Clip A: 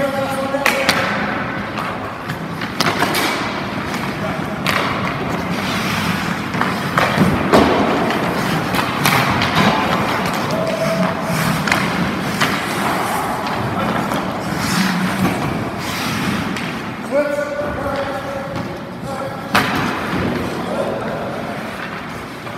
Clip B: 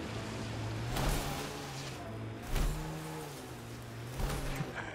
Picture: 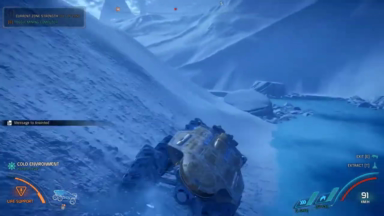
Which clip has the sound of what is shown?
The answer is B